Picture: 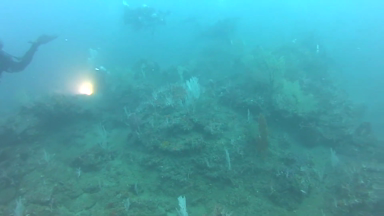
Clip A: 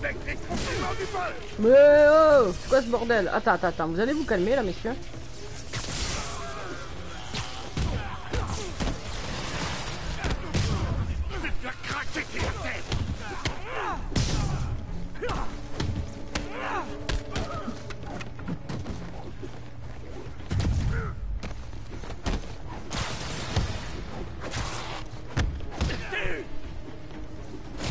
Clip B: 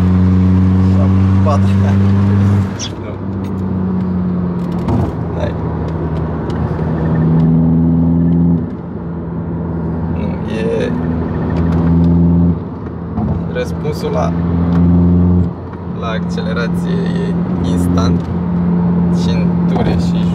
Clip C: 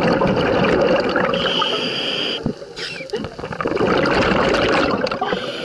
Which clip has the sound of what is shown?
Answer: C